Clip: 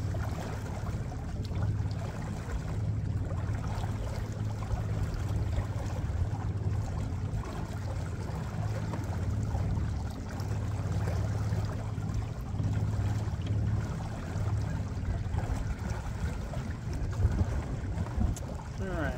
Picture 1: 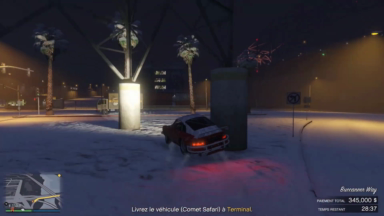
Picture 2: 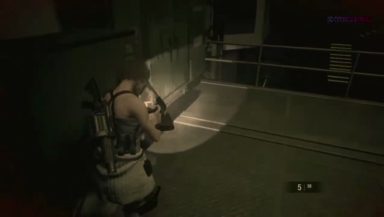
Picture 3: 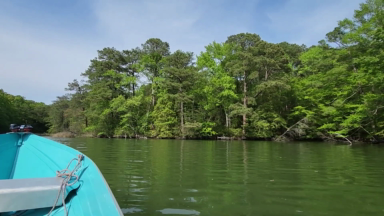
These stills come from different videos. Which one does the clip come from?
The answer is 3